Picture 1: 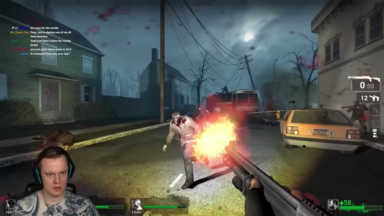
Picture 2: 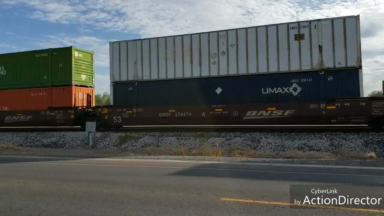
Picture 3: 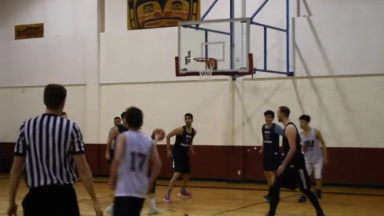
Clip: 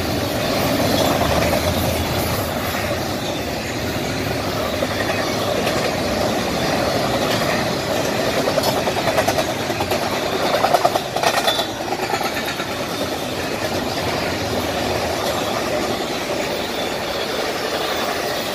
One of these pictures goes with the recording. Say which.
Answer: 2